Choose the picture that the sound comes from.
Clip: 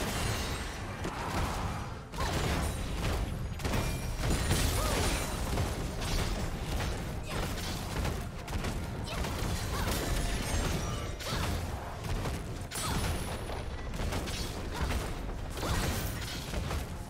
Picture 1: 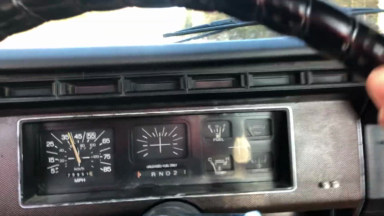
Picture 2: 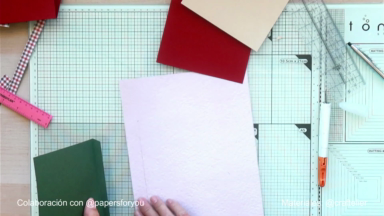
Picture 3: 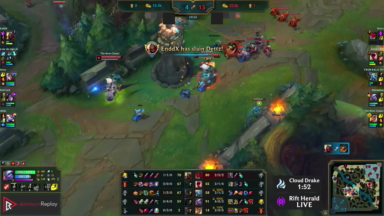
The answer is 3